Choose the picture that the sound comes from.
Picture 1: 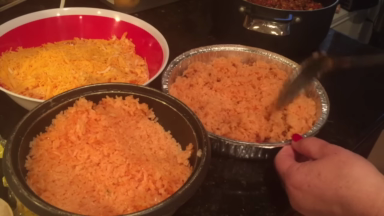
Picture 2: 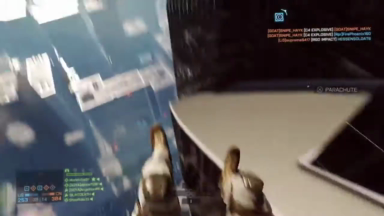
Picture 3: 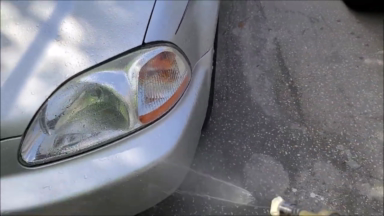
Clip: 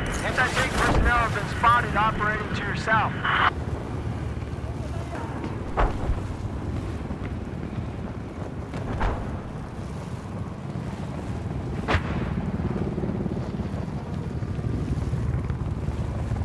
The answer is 2